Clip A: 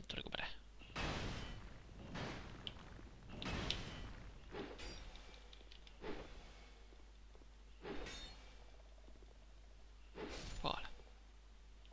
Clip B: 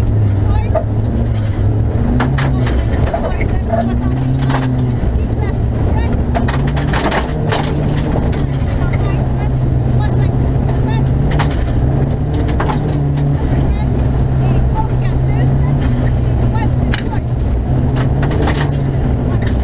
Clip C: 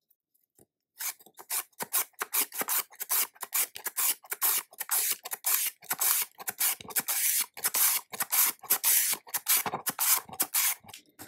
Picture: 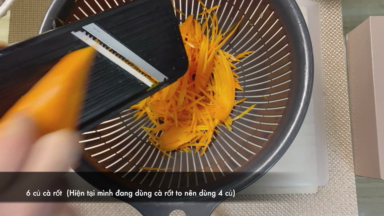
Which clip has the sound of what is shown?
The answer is C